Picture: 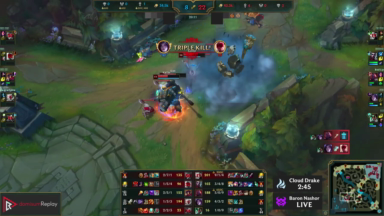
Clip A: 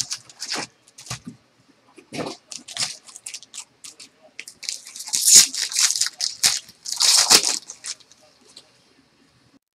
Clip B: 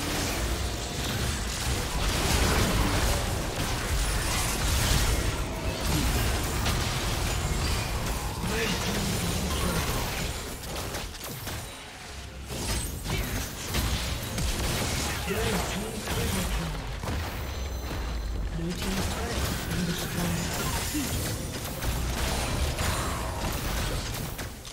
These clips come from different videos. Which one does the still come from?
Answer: B